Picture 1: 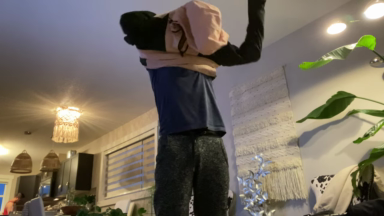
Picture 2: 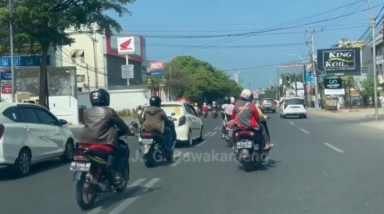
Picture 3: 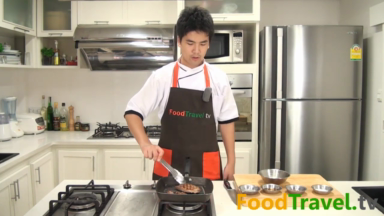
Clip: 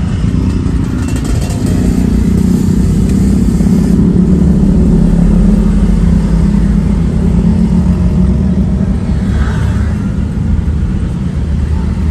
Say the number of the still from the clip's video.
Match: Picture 2